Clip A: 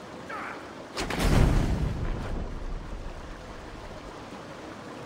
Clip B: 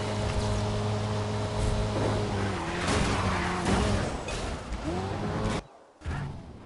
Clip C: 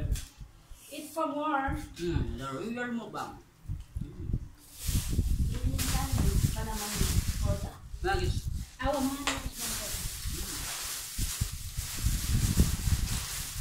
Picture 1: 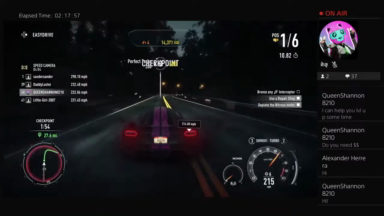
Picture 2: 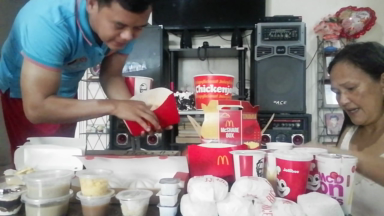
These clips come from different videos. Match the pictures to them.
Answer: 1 B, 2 C